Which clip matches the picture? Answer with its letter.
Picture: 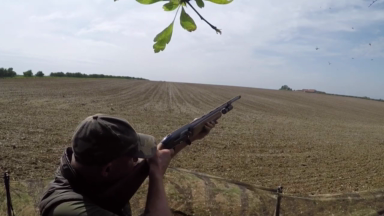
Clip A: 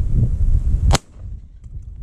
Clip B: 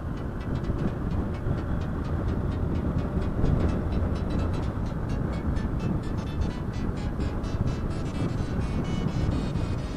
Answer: A